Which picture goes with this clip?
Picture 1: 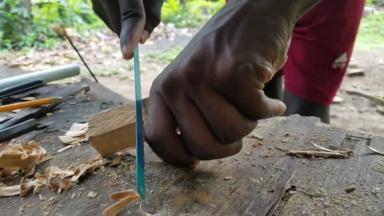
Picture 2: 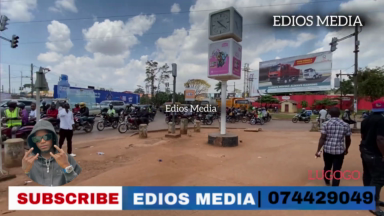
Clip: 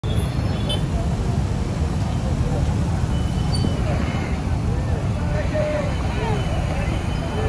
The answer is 2